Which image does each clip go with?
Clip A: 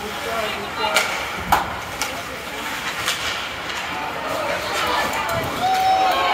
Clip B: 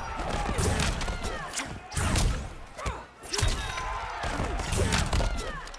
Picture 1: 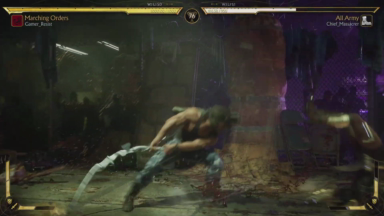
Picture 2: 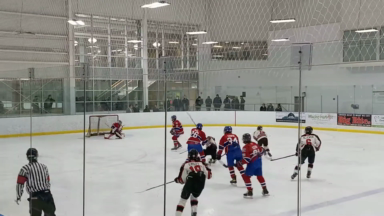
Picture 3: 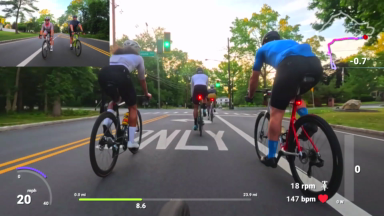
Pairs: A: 2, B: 1